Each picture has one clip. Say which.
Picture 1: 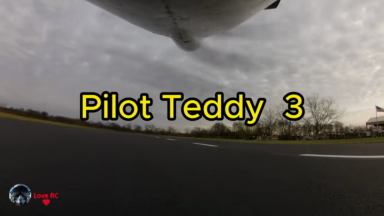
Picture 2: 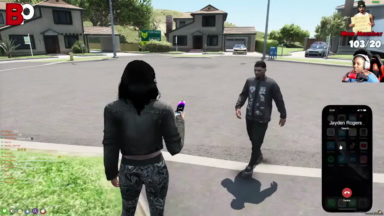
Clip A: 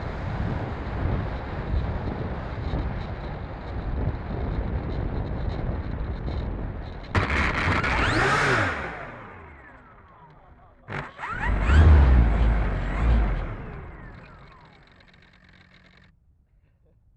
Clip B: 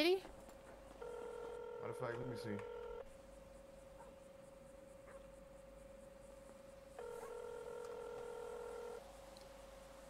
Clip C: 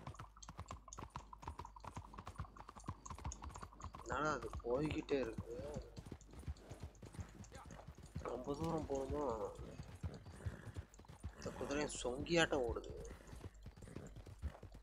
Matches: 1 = A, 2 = B